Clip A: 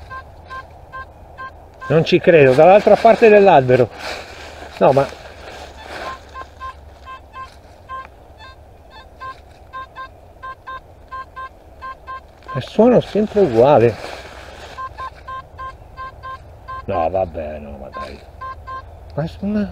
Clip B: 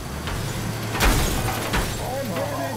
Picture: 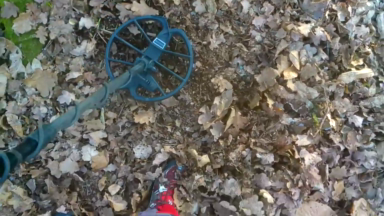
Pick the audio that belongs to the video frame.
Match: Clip A